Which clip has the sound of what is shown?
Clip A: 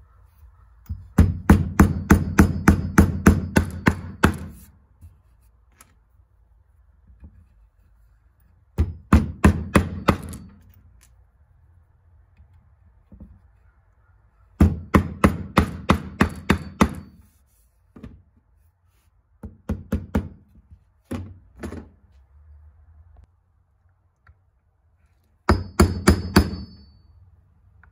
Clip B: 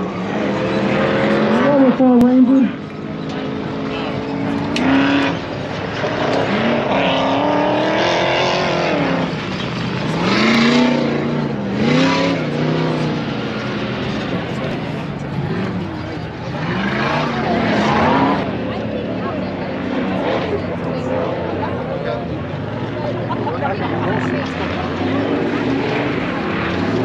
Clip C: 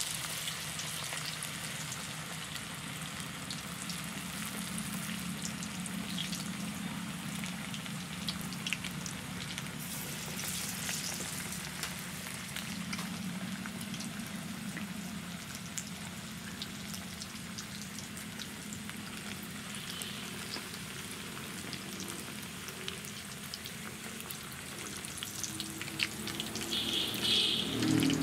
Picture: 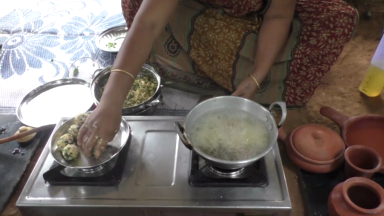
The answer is C